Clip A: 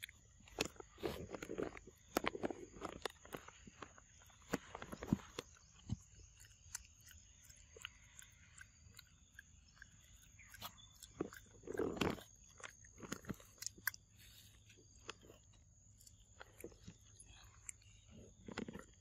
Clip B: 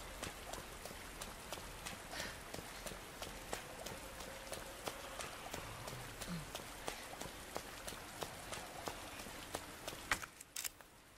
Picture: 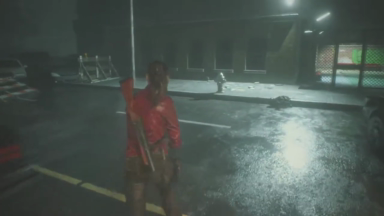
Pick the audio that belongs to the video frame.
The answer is B